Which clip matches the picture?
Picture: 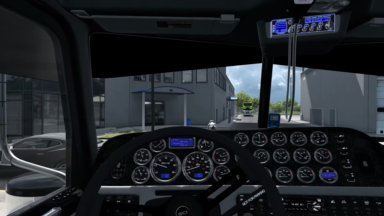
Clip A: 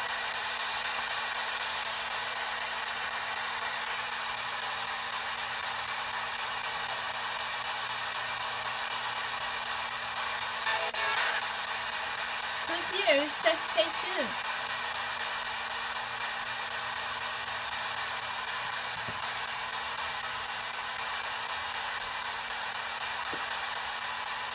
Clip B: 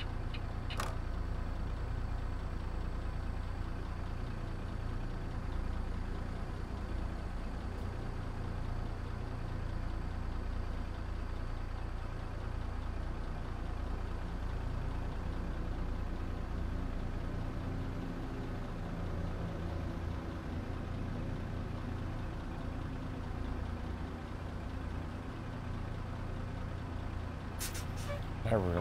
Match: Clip B